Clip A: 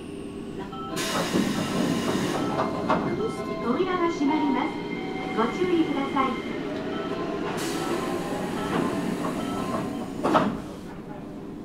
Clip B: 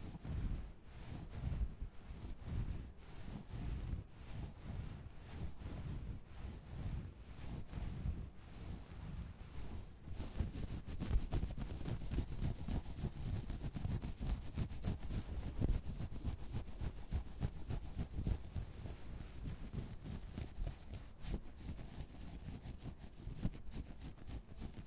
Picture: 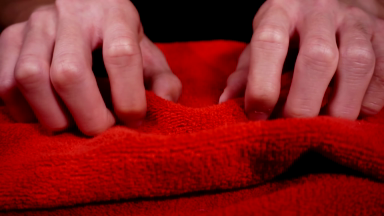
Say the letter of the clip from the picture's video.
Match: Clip B